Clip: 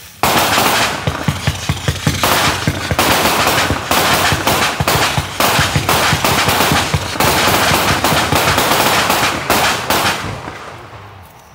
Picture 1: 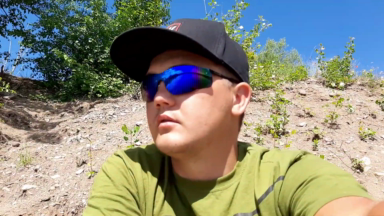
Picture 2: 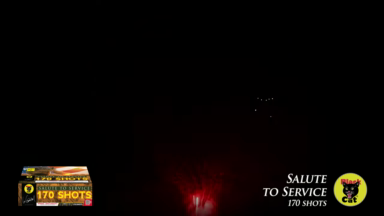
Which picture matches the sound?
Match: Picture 2